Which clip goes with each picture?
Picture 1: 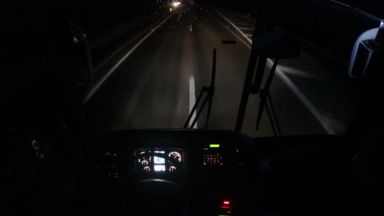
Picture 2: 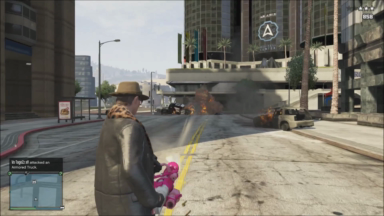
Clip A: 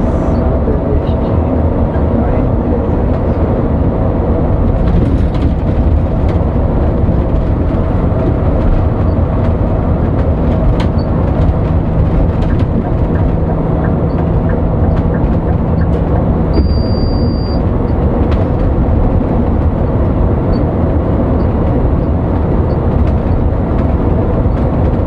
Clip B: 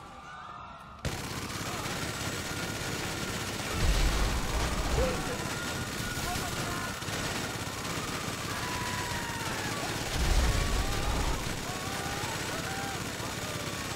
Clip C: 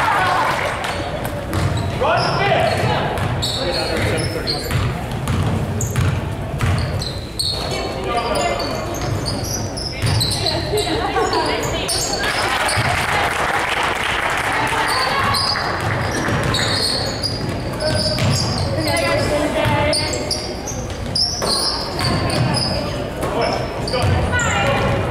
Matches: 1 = A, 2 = B